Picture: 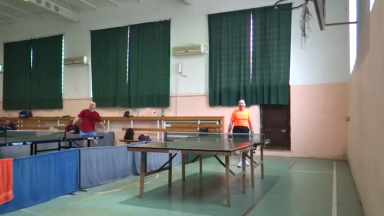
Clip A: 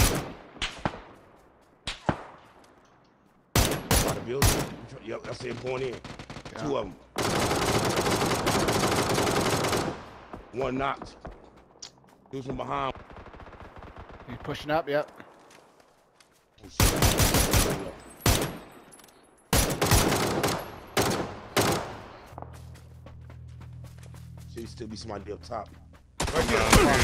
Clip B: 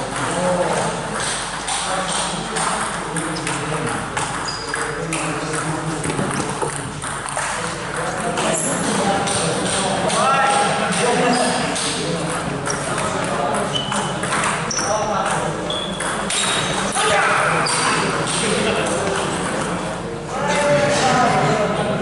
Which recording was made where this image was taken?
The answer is B